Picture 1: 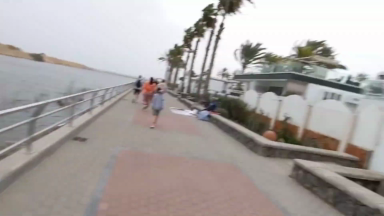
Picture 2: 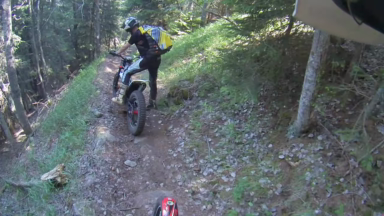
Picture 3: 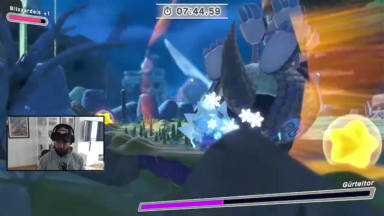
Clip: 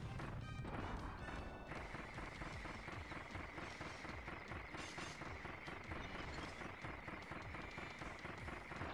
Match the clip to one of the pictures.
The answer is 3